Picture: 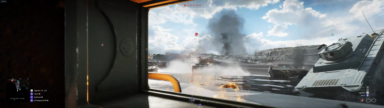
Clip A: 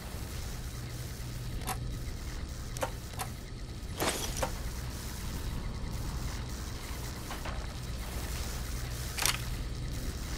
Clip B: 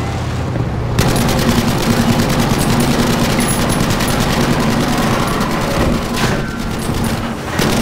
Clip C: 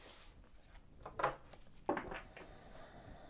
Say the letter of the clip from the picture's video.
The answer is B